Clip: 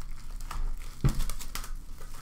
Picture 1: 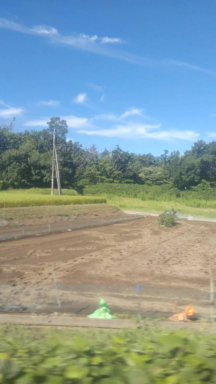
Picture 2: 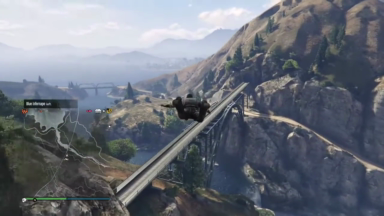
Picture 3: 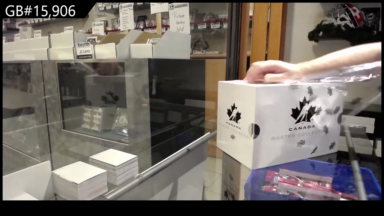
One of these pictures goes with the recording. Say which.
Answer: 3